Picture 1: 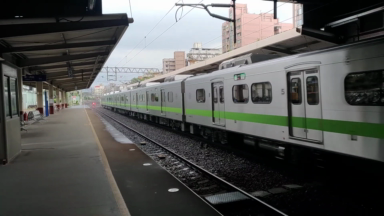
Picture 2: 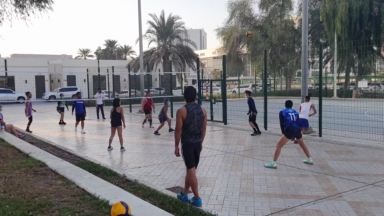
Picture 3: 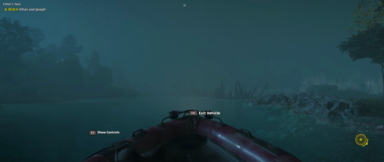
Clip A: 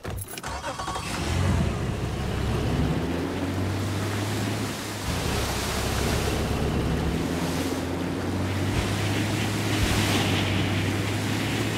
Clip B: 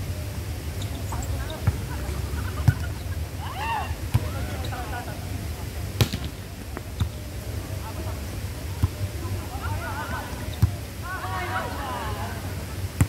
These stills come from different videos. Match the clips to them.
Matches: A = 3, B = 2